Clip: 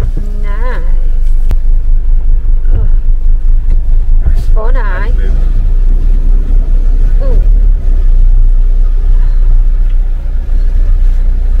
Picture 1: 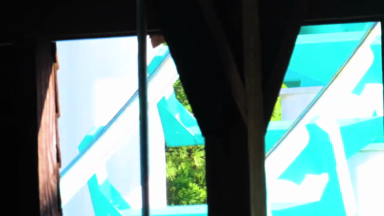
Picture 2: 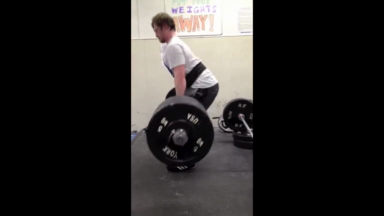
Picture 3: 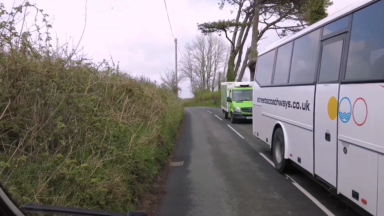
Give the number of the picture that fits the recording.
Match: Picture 3